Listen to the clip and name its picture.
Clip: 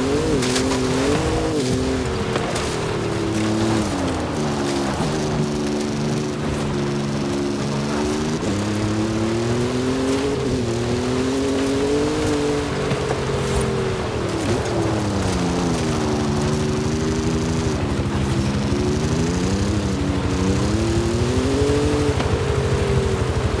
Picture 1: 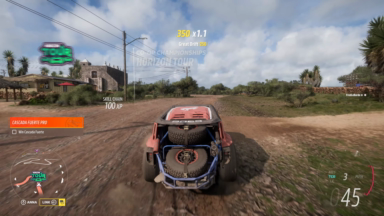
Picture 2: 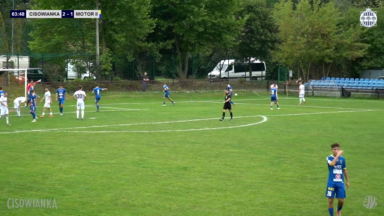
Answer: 1